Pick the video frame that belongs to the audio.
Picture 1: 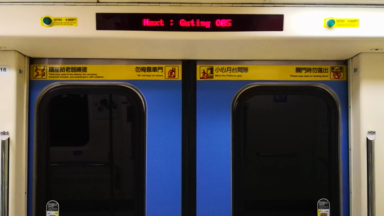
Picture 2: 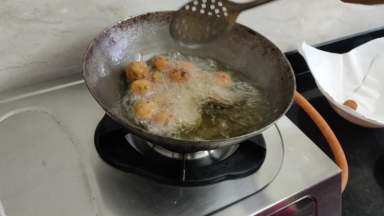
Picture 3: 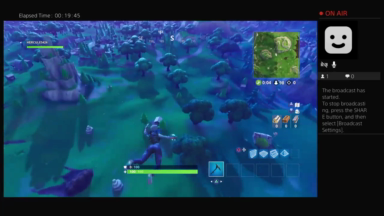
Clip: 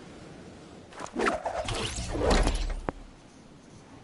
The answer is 3